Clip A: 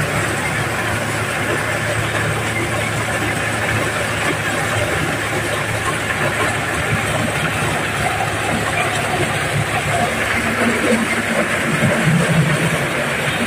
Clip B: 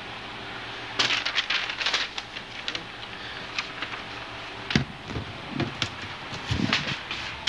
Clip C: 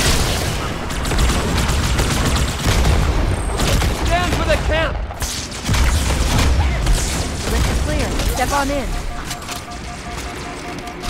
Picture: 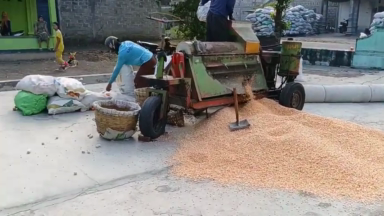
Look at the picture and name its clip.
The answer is A